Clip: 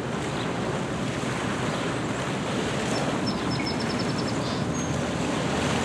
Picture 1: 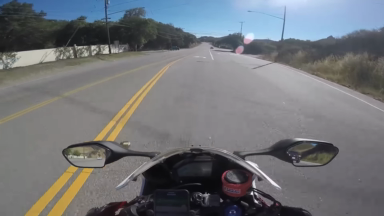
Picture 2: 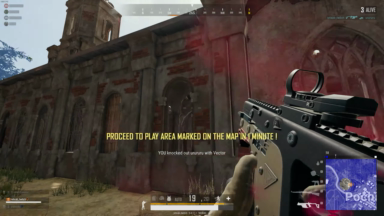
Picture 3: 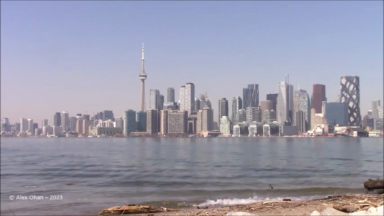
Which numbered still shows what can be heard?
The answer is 3